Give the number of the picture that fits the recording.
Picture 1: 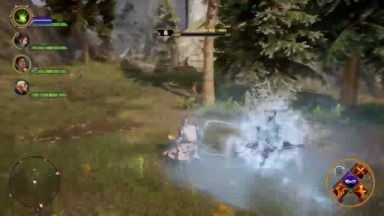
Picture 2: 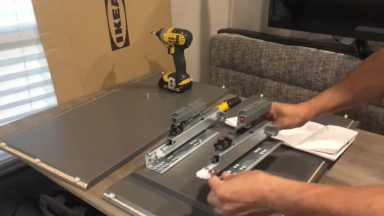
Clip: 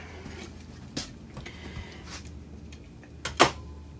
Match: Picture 2